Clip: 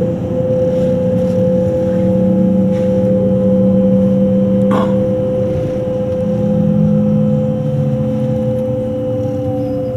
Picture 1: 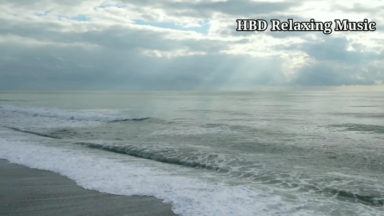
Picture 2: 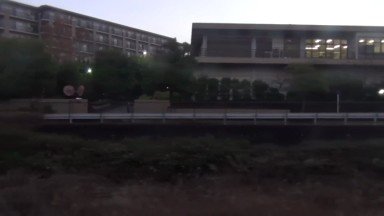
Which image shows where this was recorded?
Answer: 2